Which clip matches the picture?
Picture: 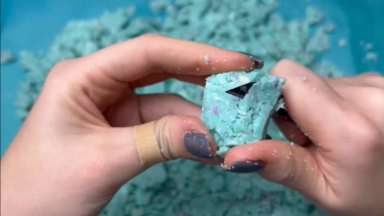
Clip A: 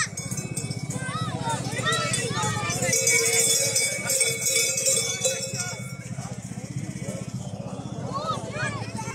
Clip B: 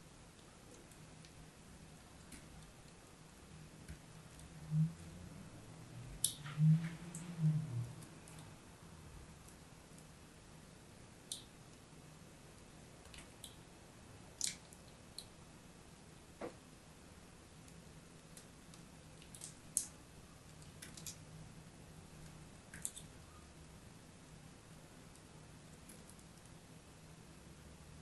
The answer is B